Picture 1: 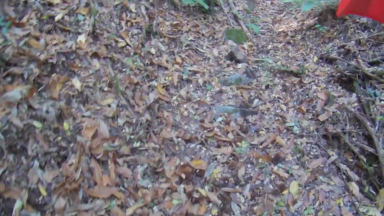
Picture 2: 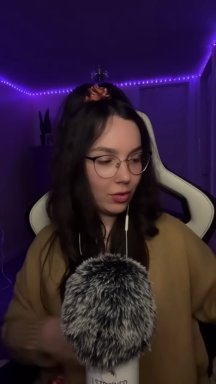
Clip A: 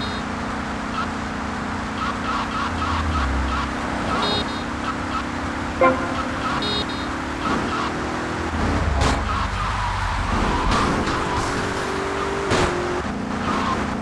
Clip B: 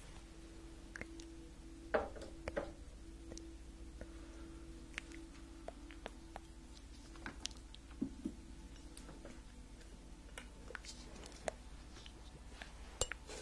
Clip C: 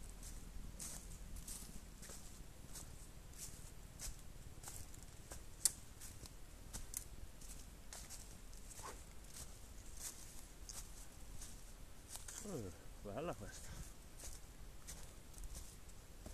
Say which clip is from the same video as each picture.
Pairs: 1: C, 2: B